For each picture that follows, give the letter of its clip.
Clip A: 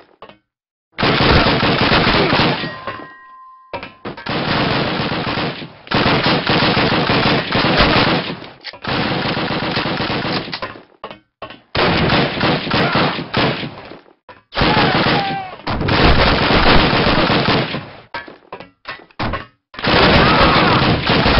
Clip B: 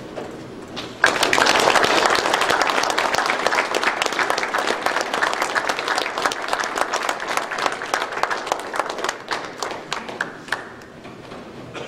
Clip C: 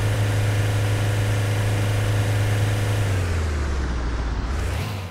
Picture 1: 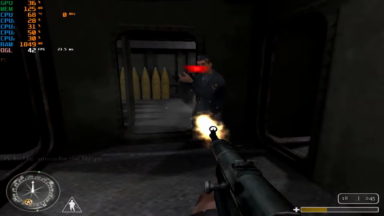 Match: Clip A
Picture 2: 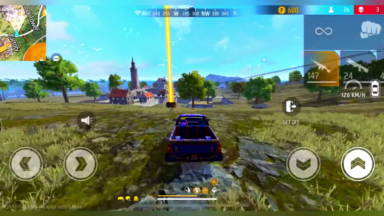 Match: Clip C